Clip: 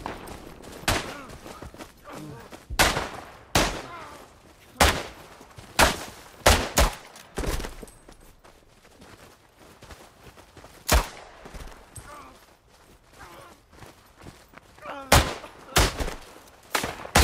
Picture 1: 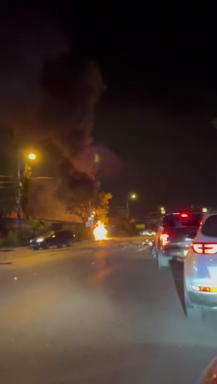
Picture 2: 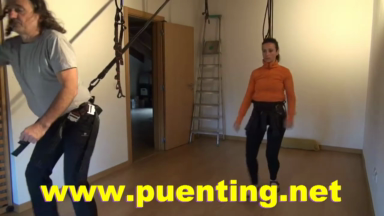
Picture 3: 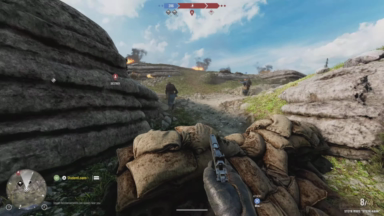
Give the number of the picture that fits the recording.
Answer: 3